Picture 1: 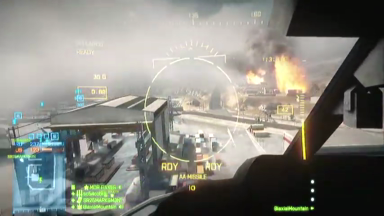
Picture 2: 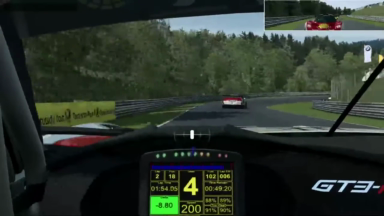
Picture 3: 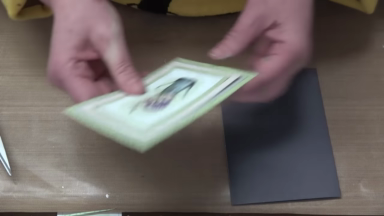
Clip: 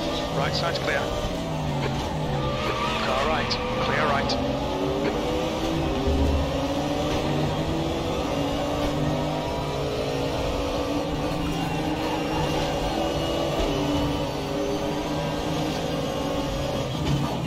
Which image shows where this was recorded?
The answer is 2